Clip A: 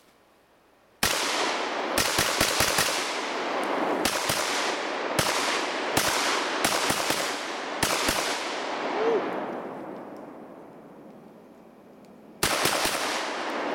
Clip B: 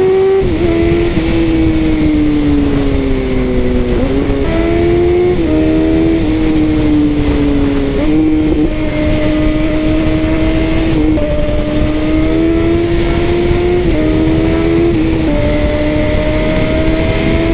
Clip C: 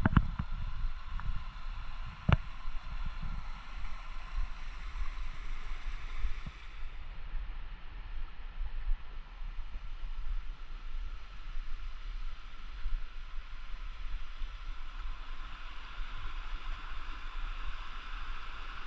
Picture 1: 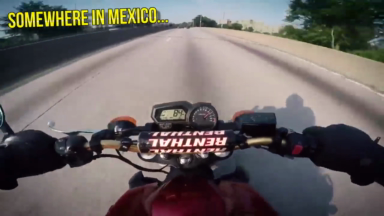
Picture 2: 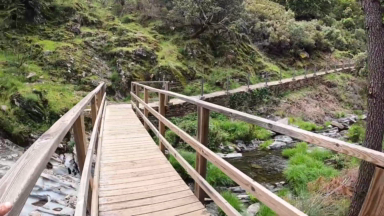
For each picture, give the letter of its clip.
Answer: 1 B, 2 C